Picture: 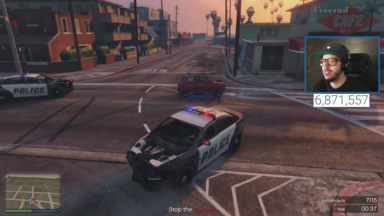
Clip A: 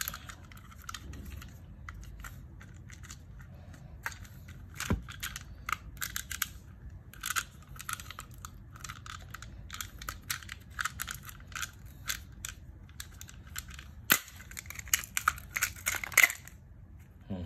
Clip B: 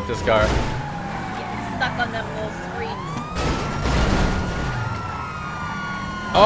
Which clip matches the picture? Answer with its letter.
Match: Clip B